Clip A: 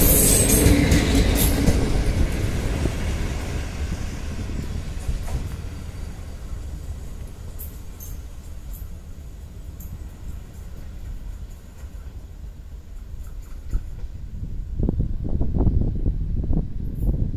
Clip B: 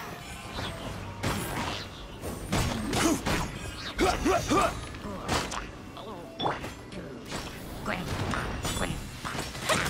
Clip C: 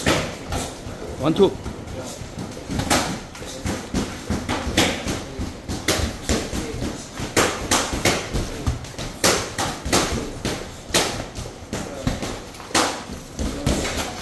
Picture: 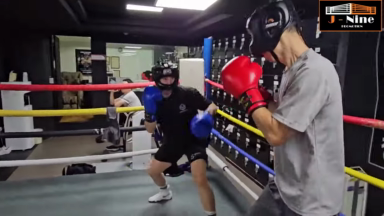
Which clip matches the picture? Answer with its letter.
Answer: C